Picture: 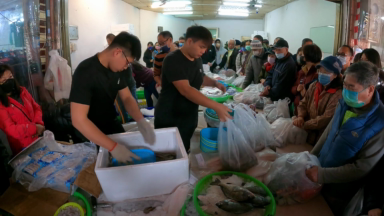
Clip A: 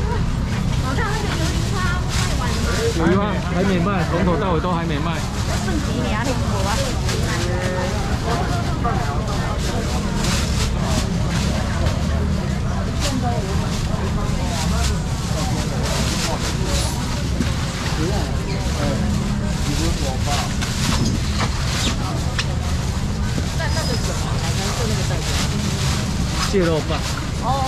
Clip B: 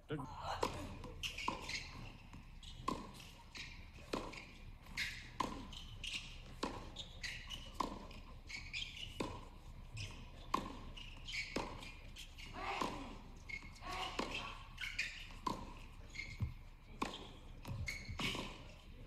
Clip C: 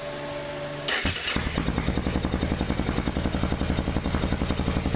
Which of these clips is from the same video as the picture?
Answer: A